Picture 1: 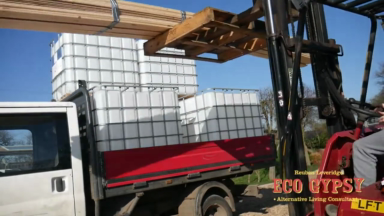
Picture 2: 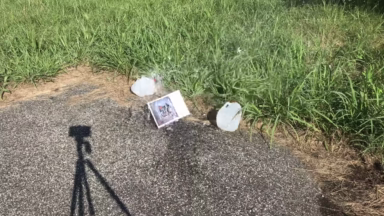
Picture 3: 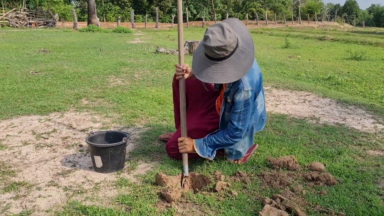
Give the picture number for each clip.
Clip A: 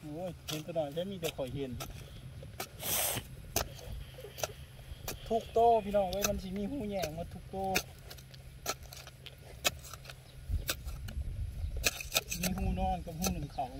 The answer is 3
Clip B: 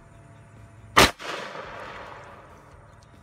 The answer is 2